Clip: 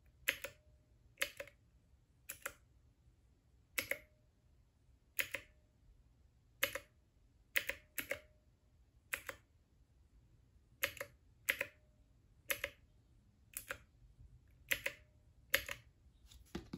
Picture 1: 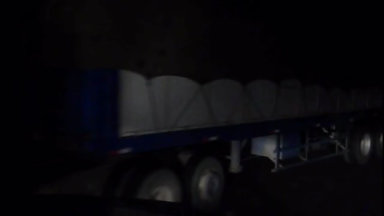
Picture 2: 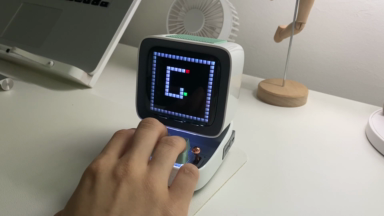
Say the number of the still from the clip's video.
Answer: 2